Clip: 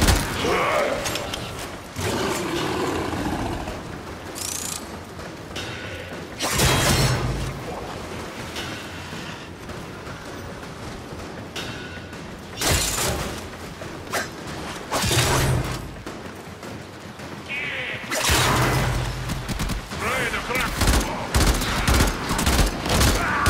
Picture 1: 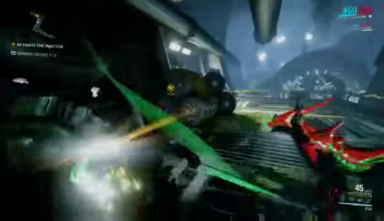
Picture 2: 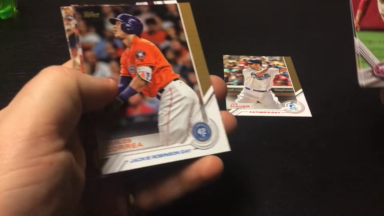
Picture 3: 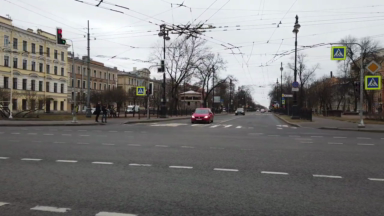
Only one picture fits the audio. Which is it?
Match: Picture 1